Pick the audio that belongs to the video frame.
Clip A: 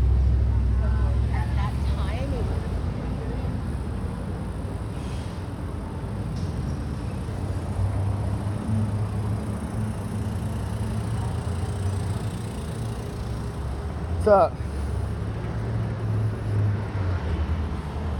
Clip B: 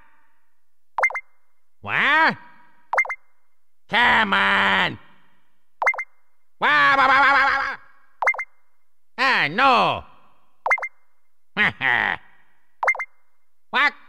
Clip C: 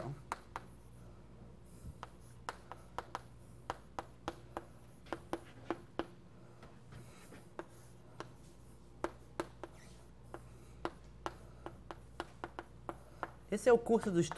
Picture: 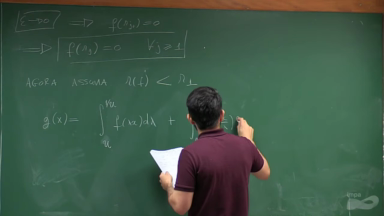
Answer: C